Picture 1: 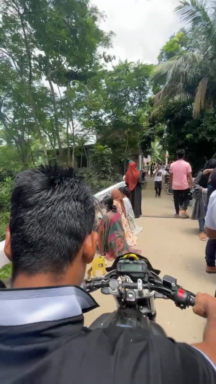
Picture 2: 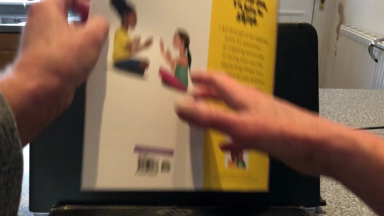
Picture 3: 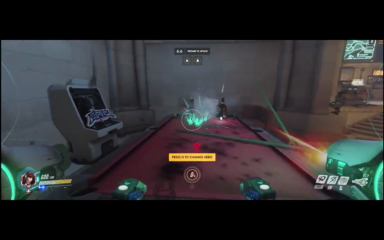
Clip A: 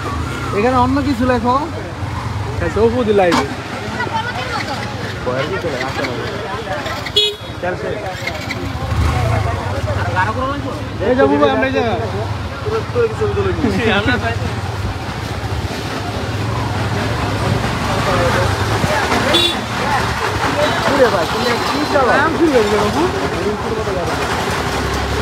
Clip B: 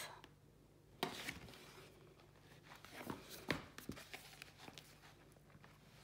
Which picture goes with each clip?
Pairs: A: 1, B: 2